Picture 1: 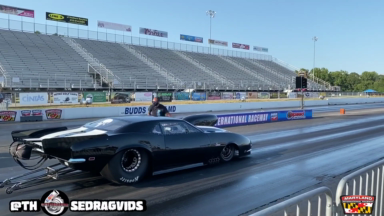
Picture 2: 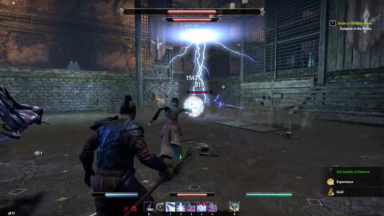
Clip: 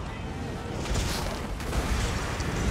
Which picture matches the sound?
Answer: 2